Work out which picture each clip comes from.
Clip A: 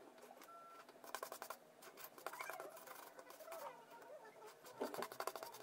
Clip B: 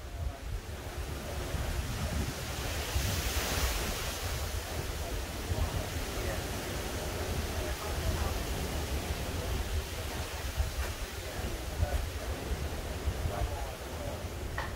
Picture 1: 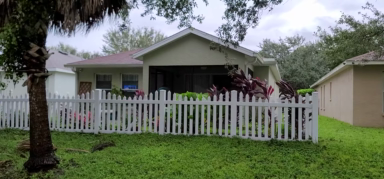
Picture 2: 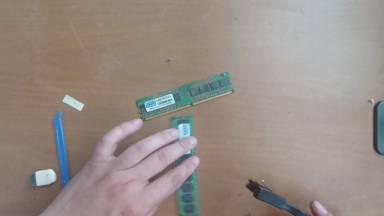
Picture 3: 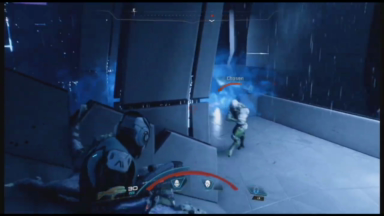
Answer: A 2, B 1